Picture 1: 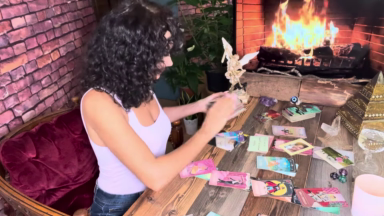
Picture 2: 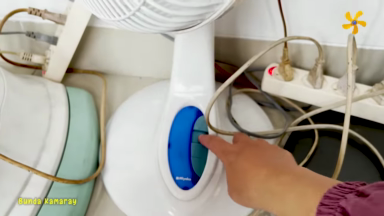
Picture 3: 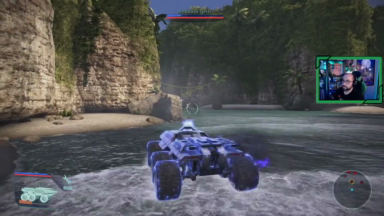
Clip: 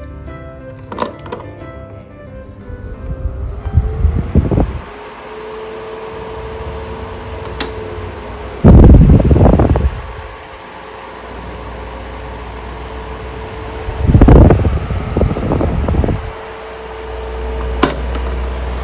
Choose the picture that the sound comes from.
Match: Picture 2